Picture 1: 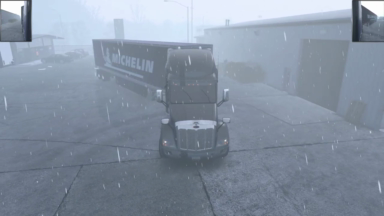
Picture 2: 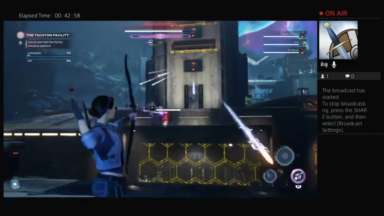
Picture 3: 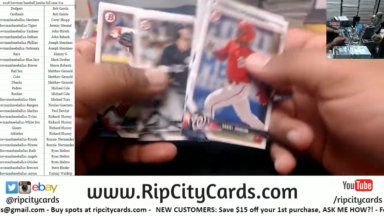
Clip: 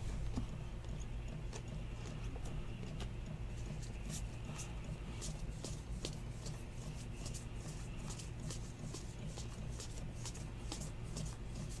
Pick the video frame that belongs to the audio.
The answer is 3